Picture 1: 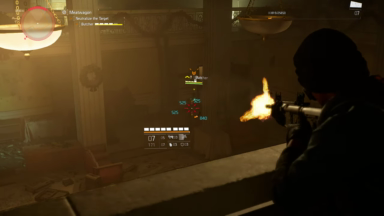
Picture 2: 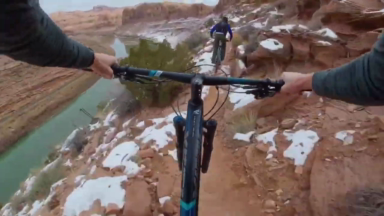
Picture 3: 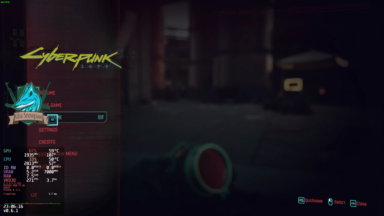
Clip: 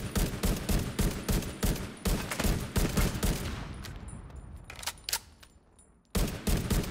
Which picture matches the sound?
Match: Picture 1